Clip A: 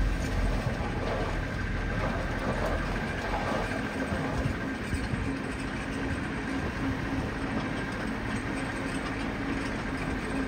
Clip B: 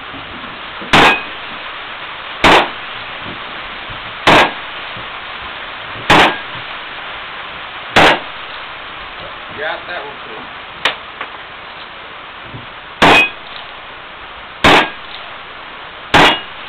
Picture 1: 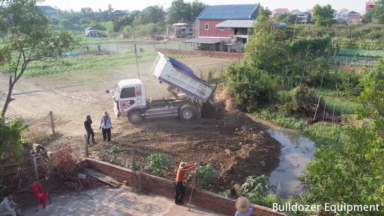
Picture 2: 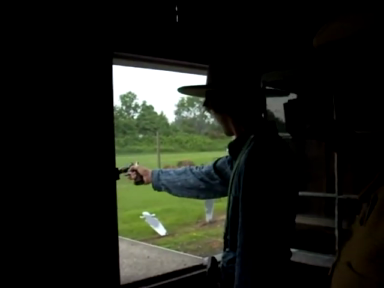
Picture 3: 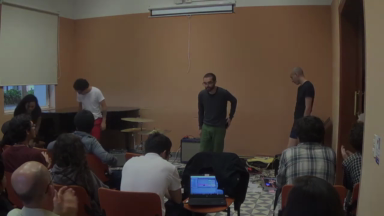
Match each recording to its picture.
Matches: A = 1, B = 2